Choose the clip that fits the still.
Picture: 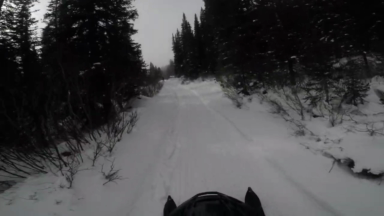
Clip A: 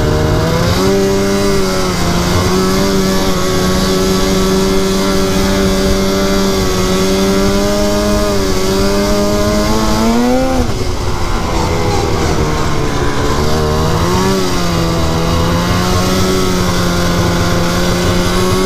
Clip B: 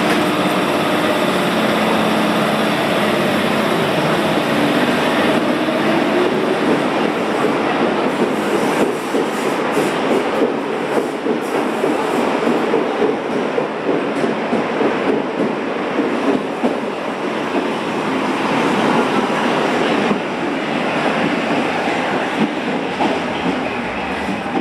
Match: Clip A